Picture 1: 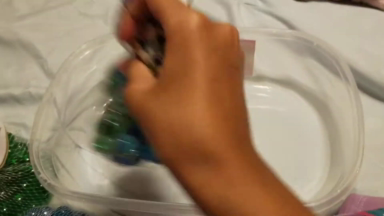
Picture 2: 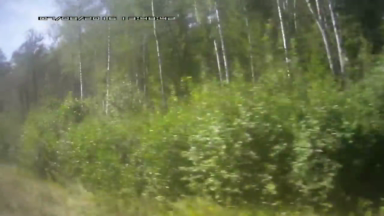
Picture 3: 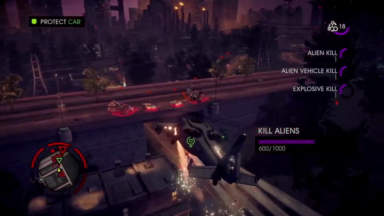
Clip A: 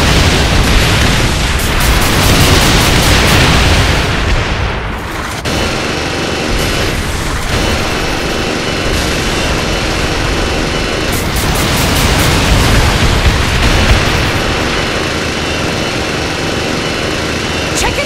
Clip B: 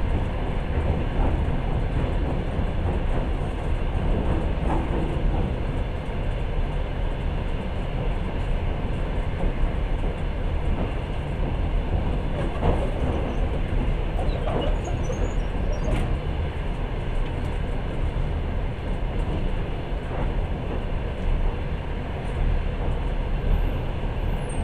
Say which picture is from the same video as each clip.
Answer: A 3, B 2